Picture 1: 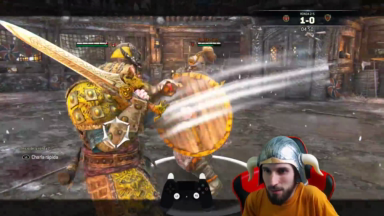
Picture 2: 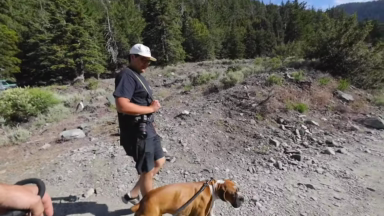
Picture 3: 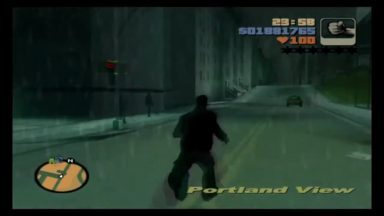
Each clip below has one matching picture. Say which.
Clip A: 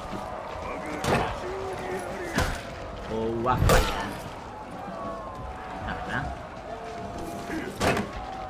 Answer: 1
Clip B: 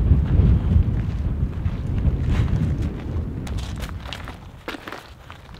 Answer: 2